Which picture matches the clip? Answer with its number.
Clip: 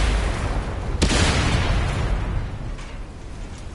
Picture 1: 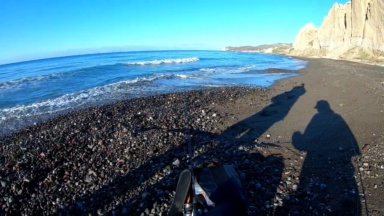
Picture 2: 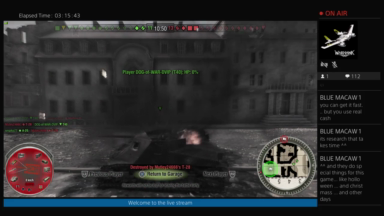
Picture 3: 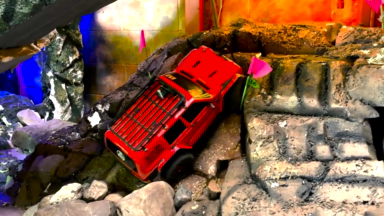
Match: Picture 2